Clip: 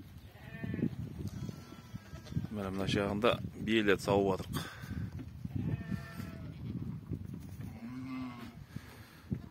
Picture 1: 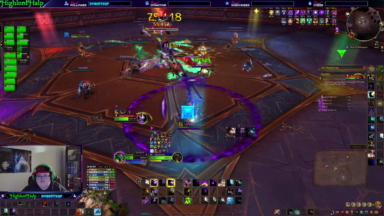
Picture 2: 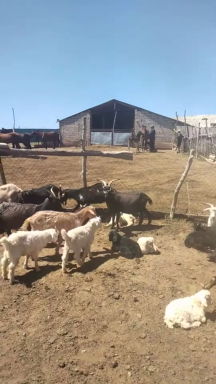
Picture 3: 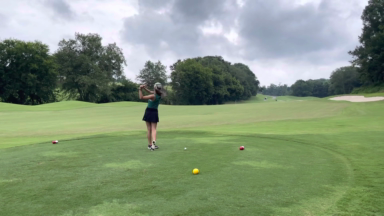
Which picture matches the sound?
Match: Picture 2